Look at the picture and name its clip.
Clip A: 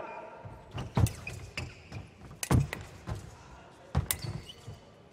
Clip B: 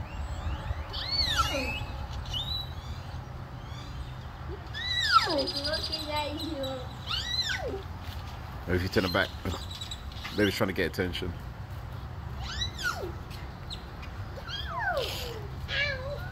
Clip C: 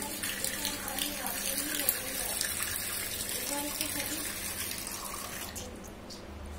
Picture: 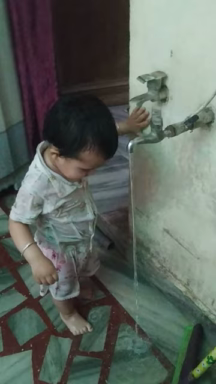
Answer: C